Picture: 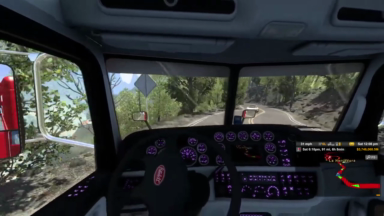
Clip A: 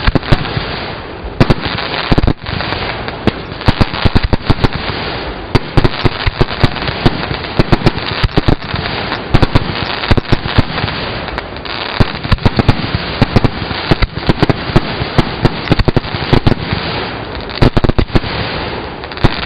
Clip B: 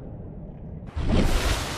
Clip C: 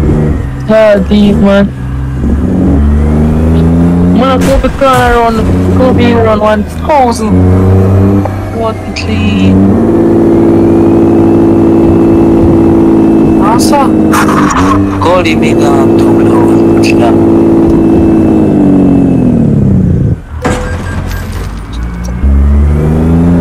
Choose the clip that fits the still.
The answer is C